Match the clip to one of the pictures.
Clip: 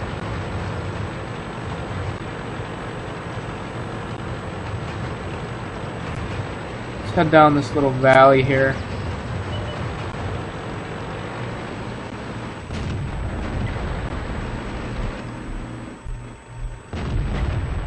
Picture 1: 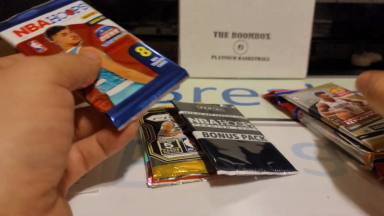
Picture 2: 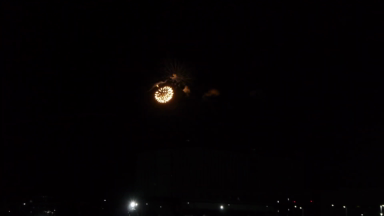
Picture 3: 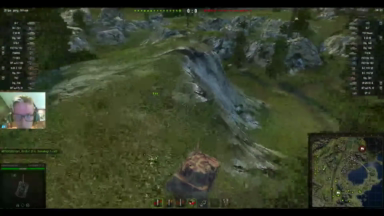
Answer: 3